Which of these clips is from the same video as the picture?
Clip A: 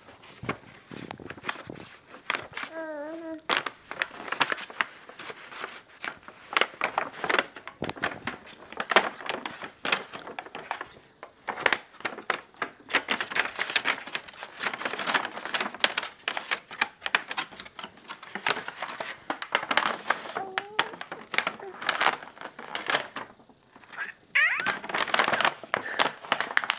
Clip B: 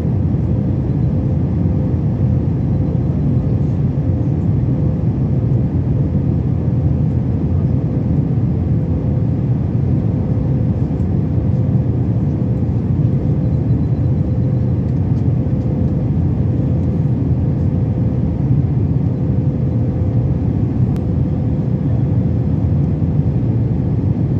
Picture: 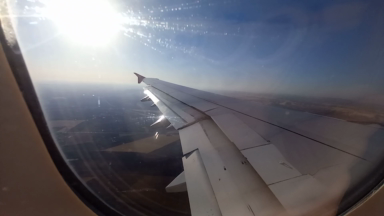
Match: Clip B